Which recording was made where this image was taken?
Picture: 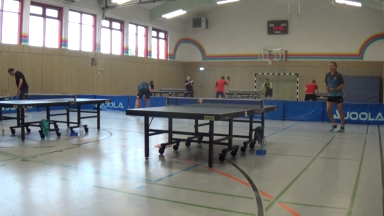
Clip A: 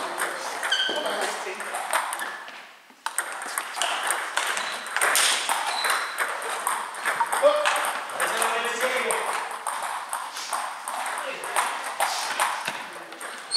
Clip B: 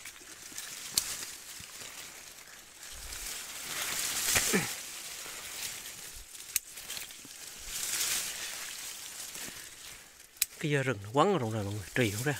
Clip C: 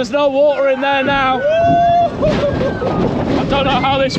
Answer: A